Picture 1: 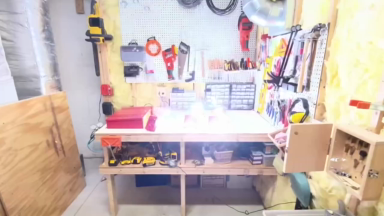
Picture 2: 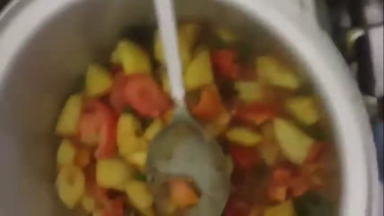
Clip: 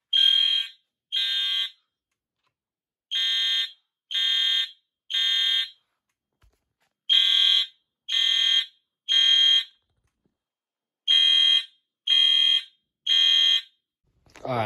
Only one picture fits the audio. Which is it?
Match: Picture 1